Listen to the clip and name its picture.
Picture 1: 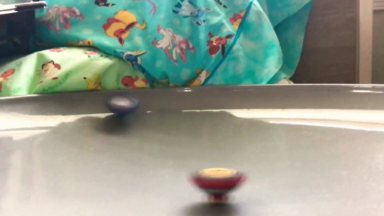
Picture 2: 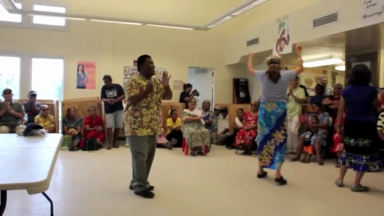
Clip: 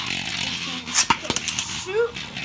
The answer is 1